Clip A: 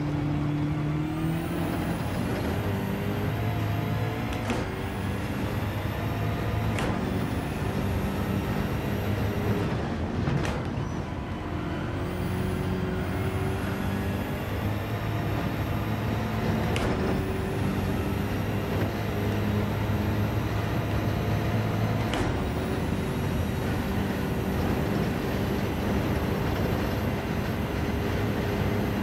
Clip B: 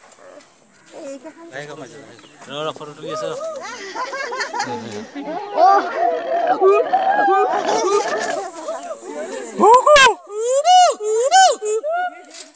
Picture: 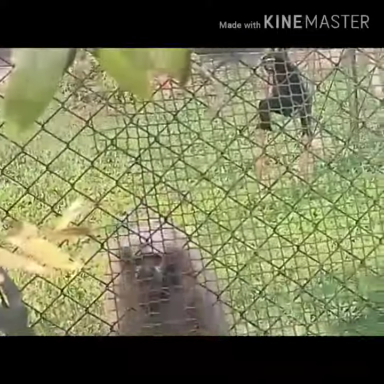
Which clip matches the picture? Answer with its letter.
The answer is B